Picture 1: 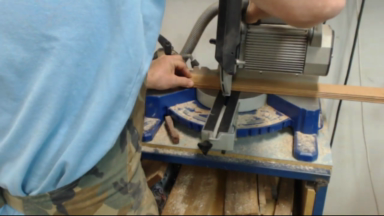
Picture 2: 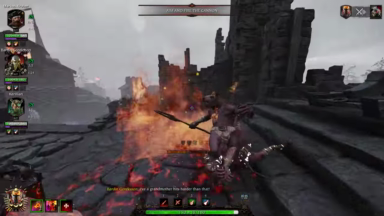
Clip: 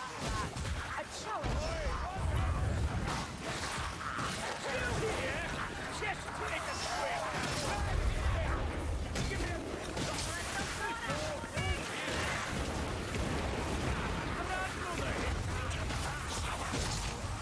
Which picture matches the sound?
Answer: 2